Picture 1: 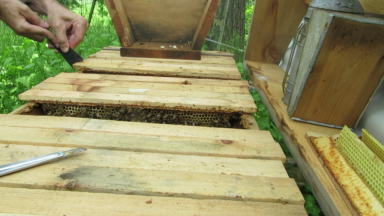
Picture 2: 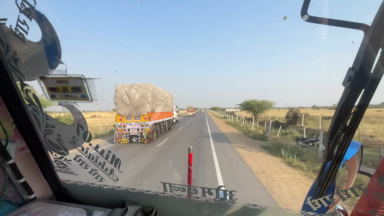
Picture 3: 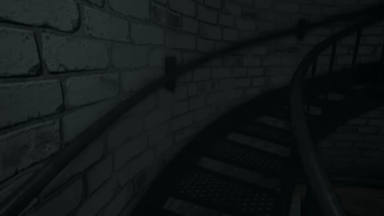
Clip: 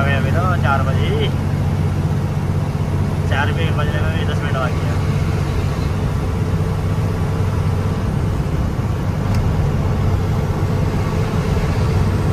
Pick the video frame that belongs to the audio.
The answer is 2